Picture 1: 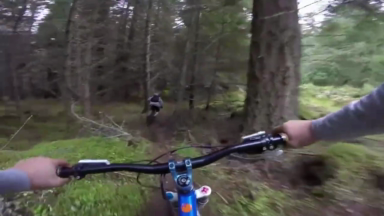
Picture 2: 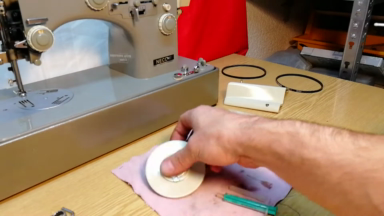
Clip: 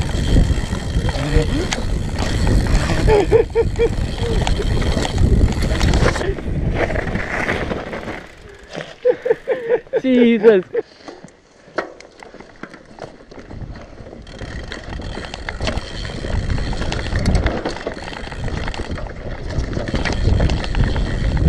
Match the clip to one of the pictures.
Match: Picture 1